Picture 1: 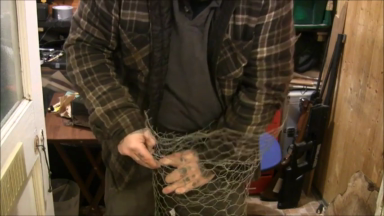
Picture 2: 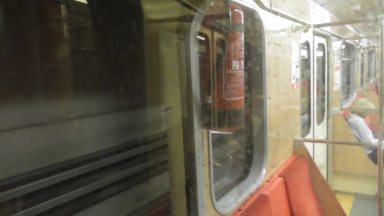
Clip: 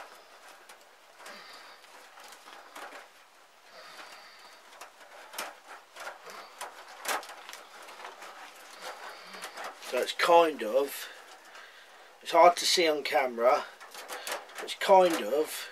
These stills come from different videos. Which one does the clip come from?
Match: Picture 1